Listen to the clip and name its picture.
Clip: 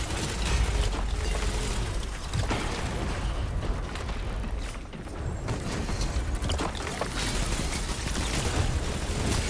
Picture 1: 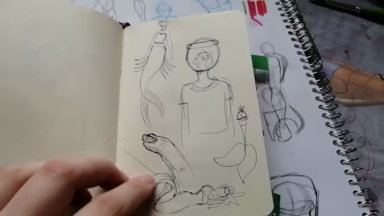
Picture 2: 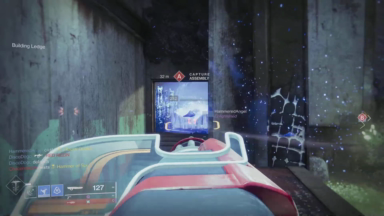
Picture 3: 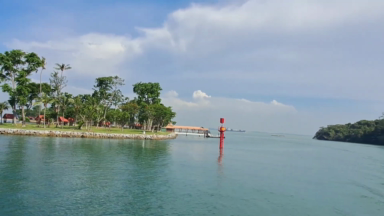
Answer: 2